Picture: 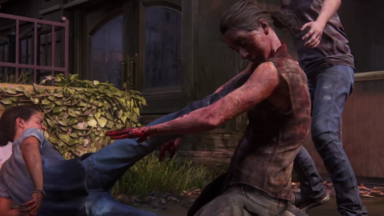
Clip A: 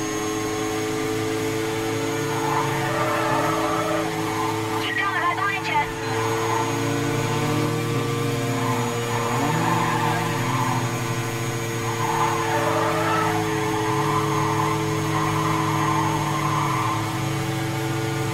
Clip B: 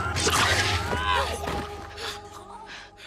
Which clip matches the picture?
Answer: B